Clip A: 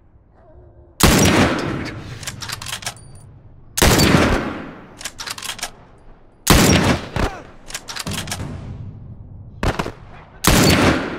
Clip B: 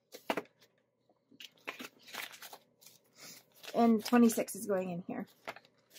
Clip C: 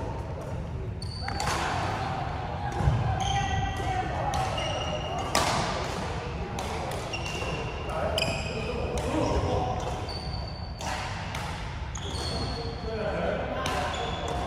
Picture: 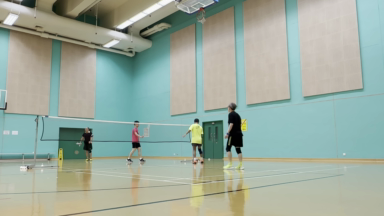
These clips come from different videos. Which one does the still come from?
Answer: C